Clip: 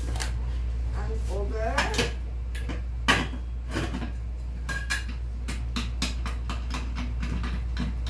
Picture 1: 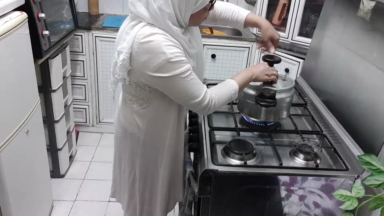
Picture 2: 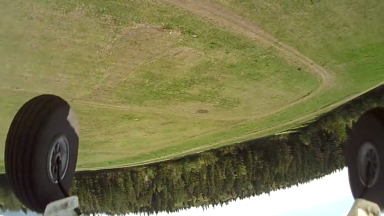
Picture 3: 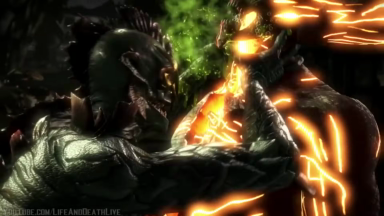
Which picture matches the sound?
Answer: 1